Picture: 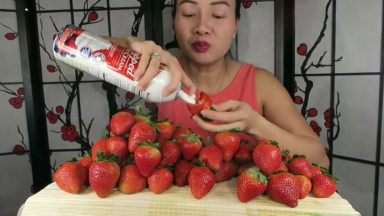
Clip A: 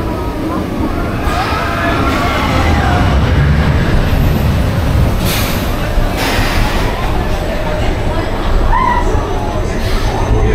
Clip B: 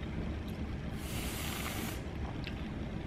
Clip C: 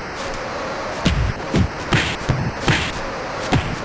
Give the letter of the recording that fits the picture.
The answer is B